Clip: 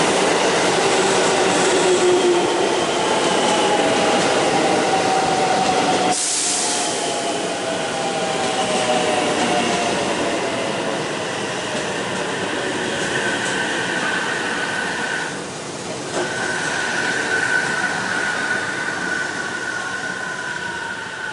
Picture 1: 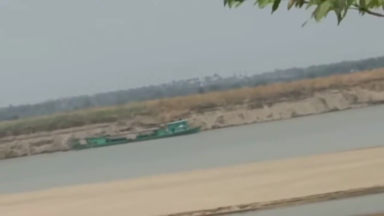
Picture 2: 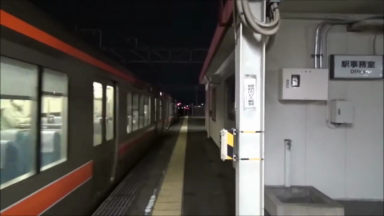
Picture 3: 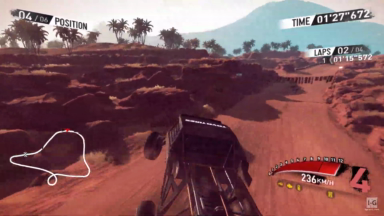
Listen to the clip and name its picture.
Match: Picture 2